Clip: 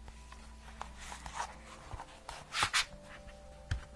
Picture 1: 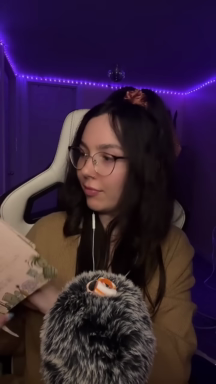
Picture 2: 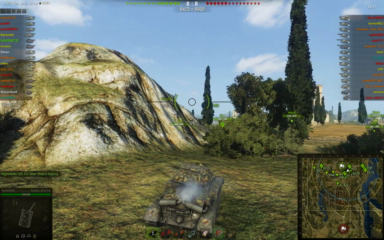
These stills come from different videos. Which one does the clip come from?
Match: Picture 1